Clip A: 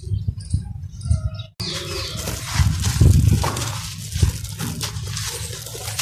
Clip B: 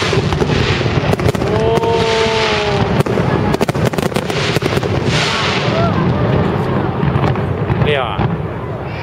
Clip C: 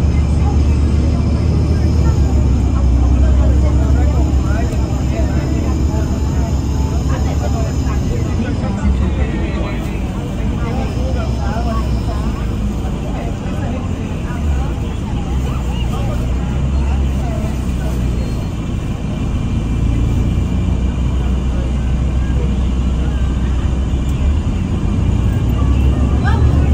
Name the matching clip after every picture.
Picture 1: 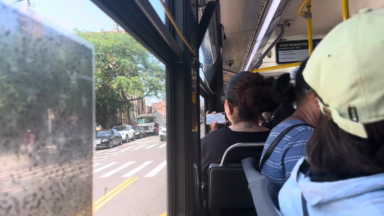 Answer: C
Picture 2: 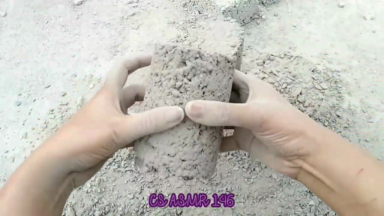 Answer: A